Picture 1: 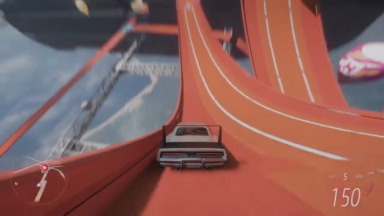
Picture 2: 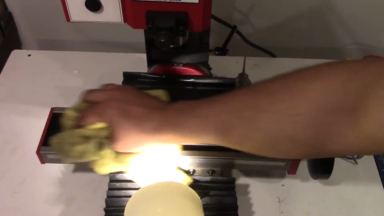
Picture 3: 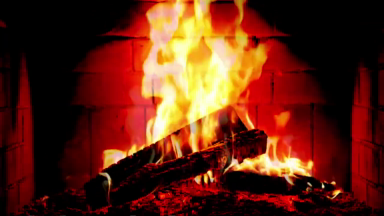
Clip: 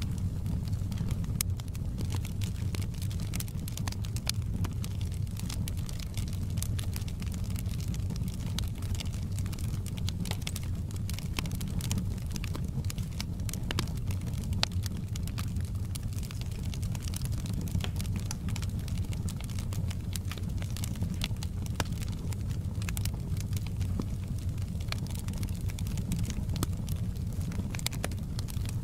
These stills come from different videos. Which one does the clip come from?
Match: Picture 3